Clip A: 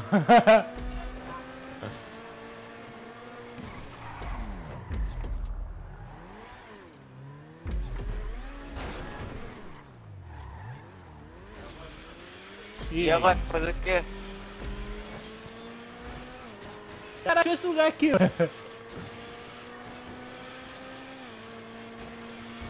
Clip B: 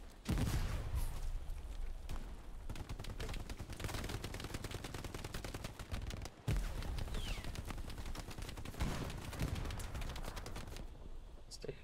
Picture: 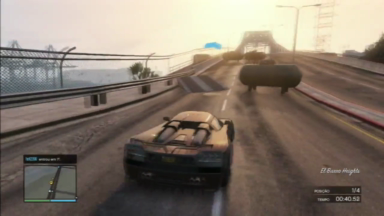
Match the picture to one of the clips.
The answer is A